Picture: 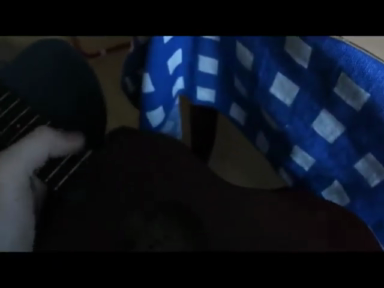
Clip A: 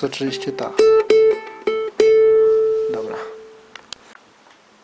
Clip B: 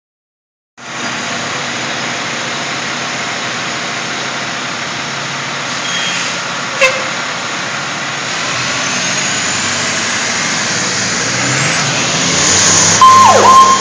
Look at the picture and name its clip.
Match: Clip A